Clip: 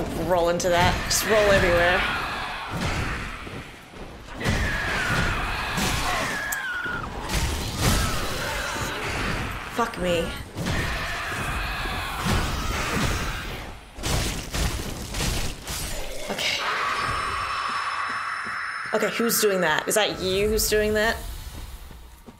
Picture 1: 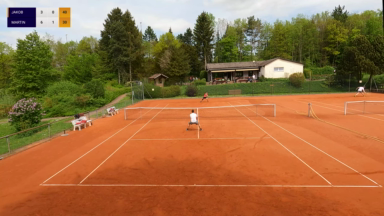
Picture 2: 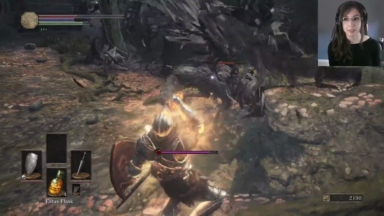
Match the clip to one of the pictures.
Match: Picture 2